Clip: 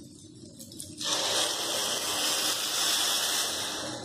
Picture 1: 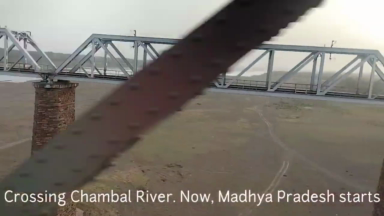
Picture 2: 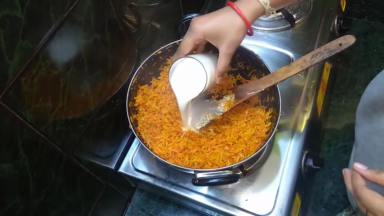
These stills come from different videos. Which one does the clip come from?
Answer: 2